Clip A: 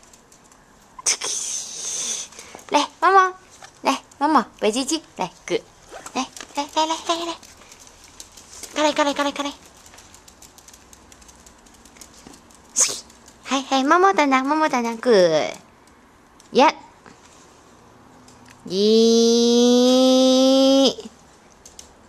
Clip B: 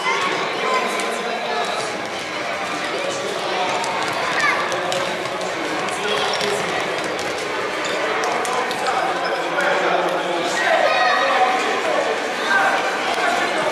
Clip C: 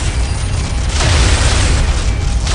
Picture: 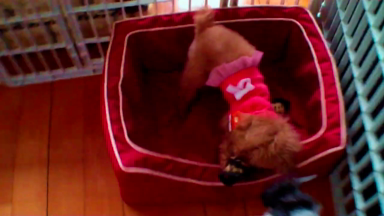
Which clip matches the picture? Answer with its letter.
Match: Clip A